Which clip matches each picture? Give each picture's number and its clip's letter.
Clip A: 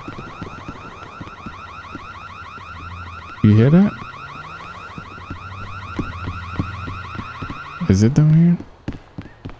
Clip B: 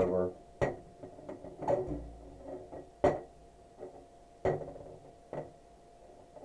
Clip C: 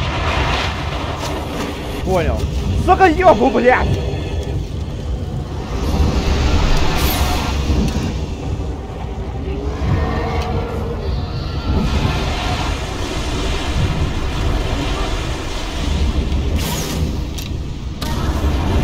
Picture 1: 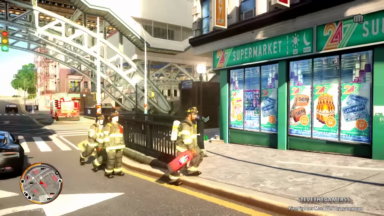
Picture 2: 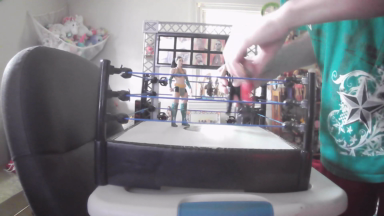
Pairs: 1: A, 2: B